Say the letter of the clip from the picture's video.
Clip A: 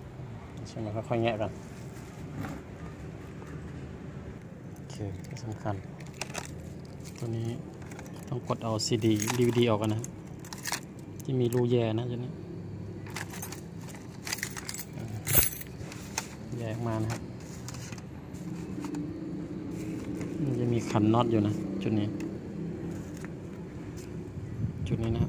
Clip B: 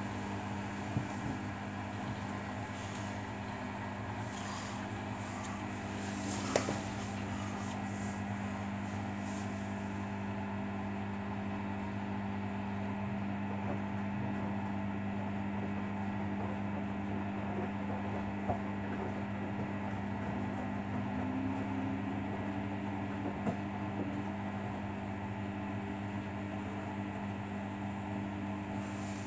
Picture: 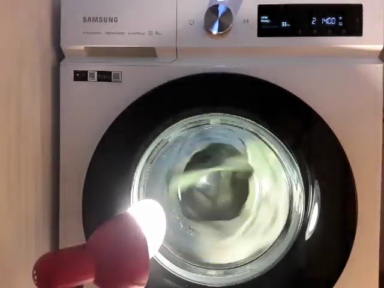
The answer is B